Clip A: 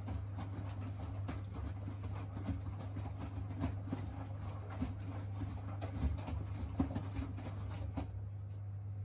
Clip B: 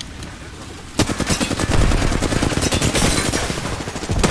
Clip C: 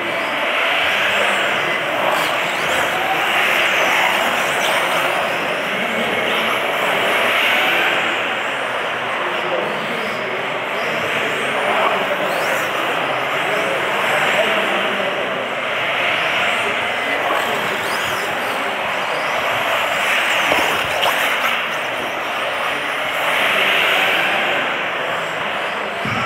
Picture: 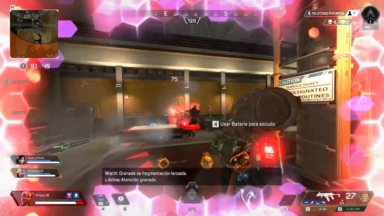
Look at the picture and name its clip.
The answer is B